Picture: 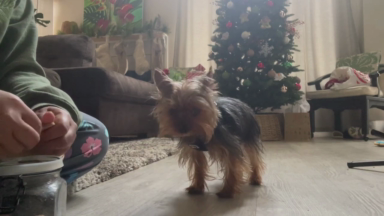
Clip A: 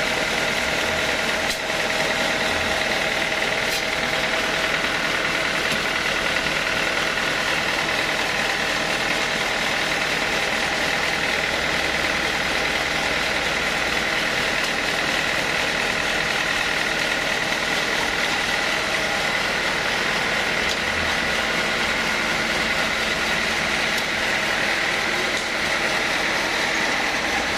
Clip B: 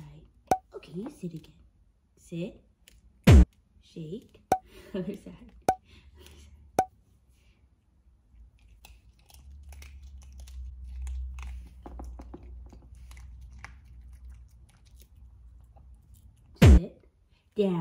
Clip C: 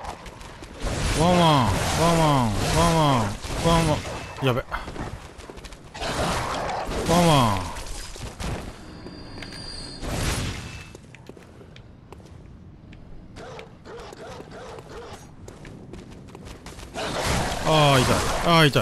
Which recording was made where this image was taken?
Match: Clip B